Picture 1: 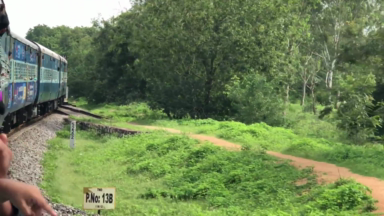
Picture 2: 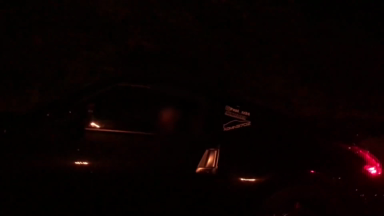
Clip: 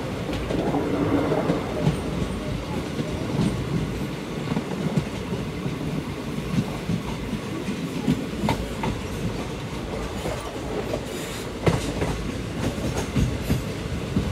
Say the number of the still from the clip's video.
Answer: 1